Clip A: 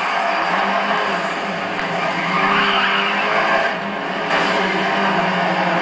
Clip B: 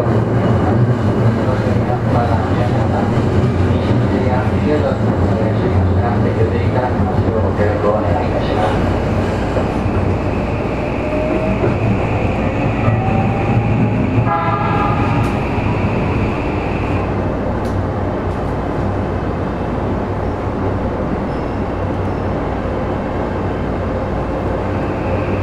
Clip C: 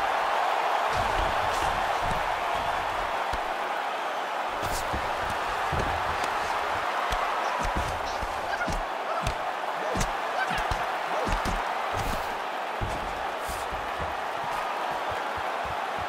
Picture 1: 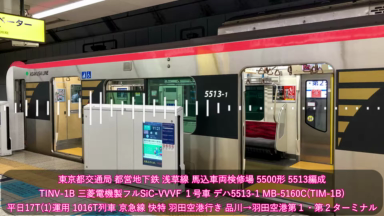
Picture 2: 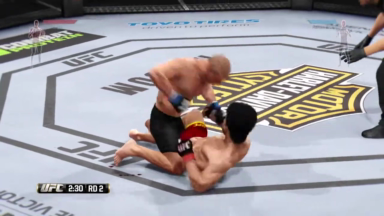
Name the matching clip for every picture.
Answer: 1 B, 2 C